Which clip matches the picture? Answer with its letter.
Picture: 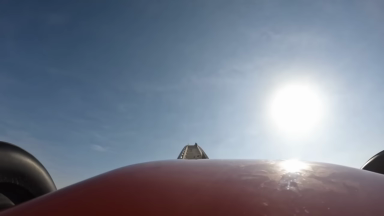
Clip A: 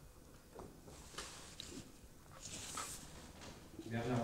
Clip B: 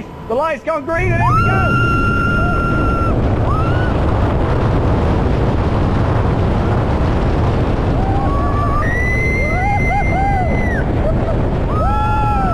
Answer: B